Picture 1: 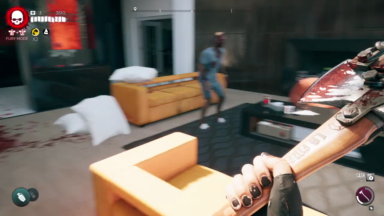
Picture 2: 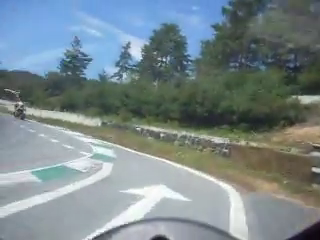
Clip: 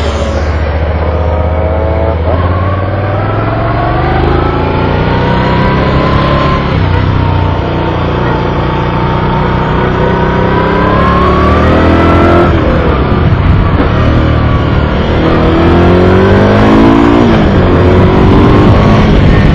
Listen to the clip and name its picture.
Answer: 2